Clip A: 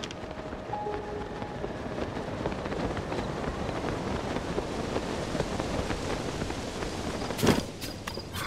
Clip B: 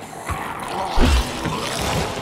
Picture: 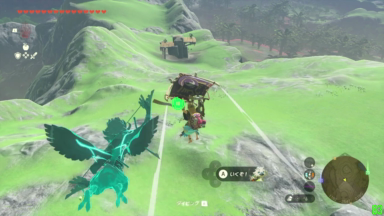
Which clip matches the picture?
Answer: A